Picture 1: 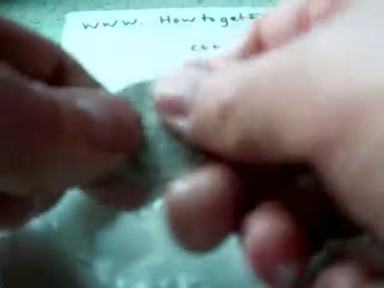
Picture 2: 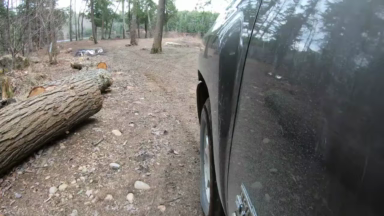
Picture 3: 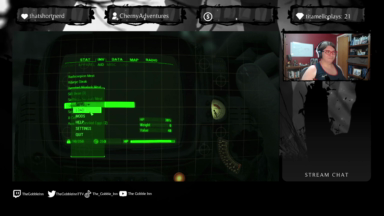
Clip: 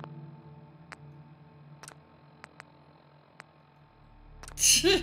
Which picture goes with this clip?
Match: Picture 3